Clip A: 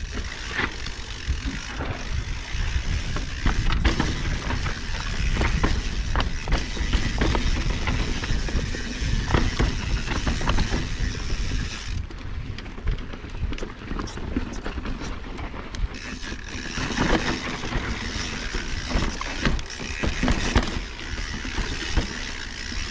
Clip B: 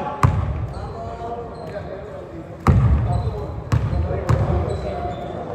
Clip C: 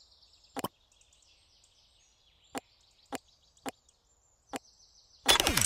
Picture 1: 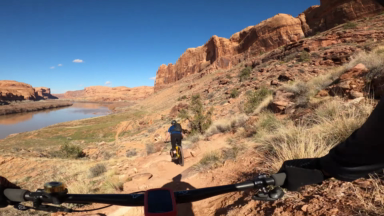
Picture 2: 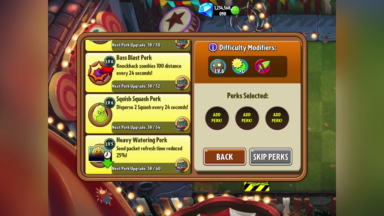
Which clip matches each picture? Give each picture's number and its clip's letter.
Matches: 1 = A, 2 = C